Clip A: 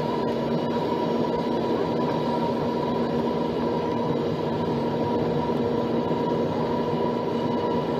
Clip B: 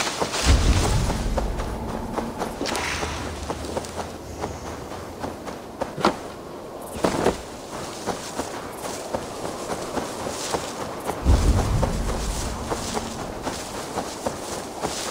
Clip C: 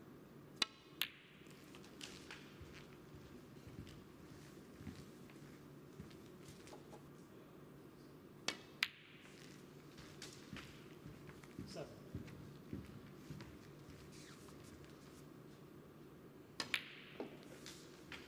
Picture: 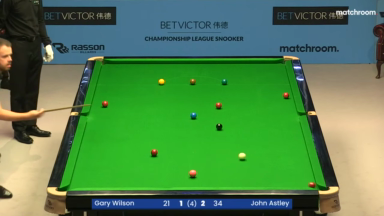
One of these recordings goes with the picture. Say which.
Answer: C